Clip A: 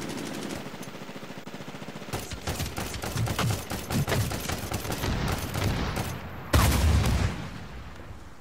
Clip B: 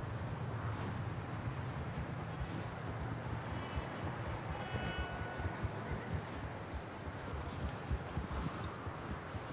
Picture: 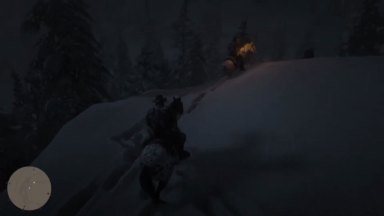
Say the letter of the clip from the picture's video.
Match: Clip B